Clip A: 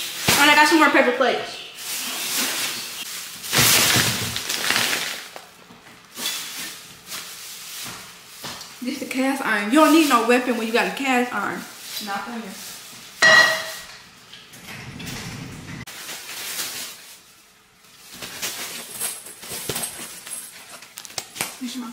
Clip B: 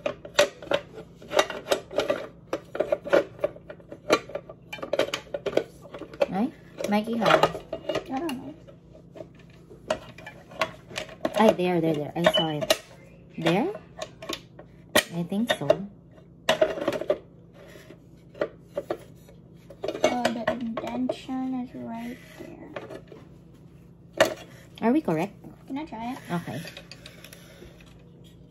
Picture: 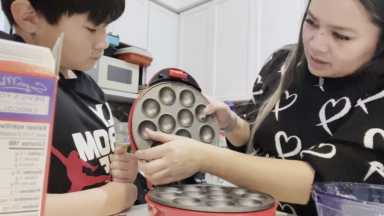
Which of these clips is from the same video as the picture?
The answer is B